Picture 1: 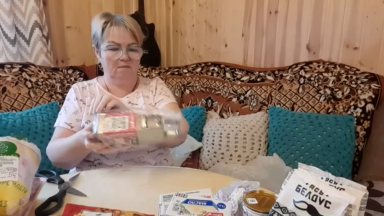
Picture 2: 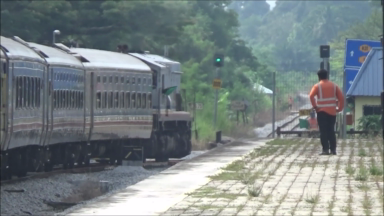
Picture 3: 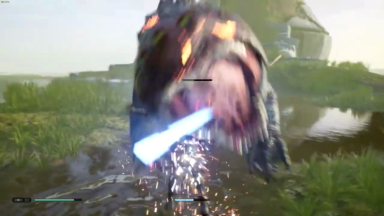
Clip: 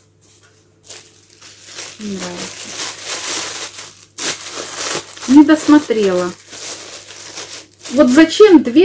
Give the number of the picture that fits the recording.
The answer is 1